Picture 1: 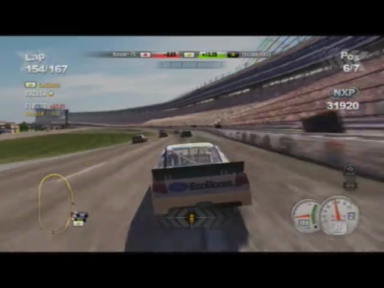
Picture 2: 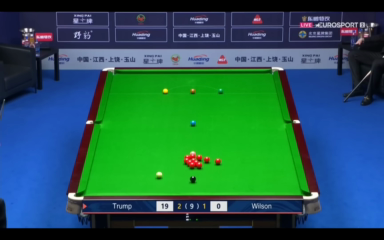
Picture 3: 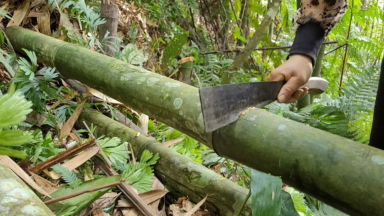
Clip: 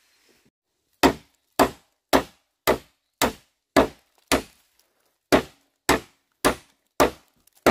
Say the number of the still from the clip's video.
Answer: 3